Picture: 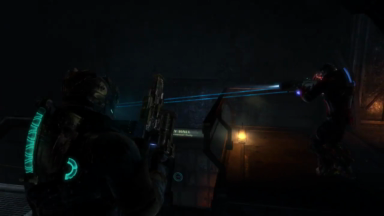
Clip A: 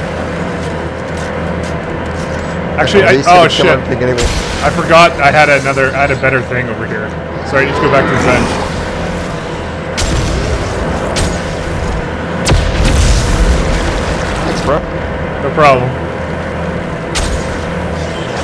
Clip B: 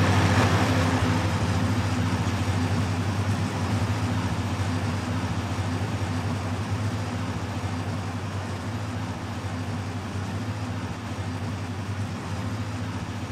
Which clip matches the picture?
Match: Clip A